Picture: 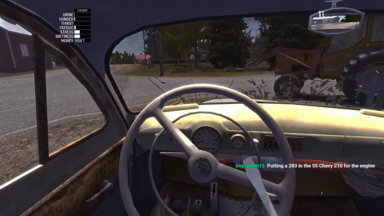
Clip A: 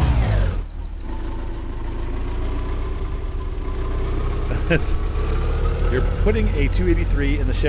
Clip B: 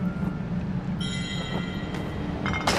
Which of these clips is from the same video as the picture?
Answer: A